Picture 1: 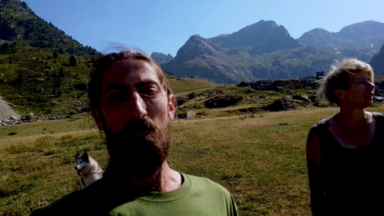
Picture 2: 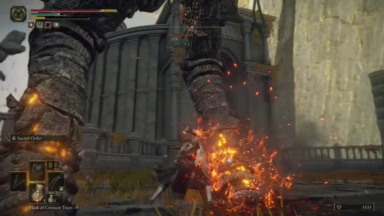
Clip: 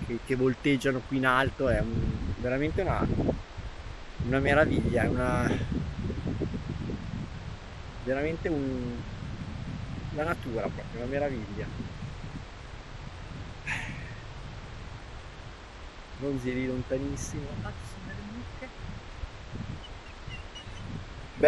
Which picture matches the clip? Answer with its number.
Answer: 1